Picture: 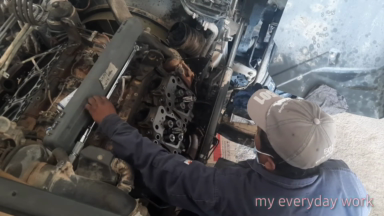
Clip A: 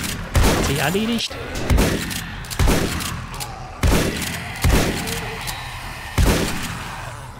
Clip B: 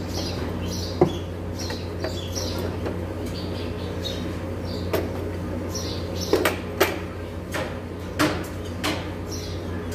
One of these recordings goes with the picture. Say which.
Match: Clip B